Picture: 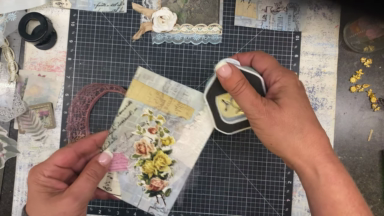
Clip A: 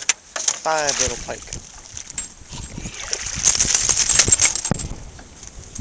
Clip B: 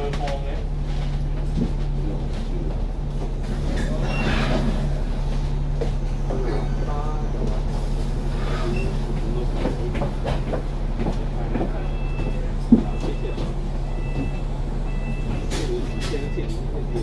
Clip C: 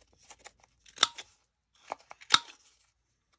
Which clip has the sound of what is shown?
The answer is C